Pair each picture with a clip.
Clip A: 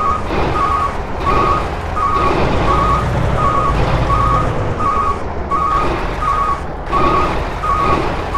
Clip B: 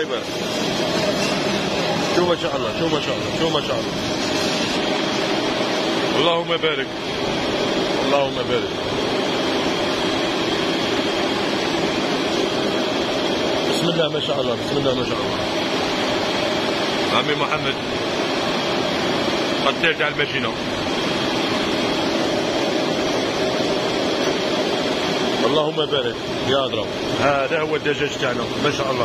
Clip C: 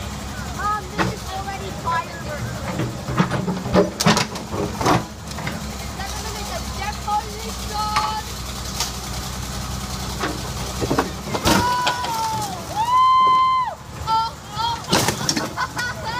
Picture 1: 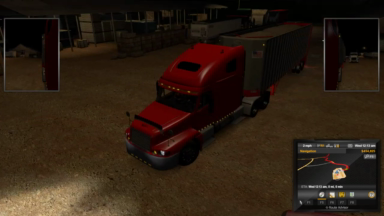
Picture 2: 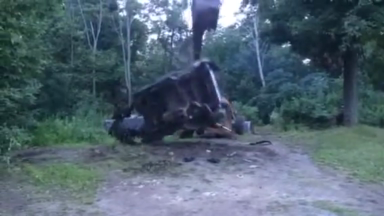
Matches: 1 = A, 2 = C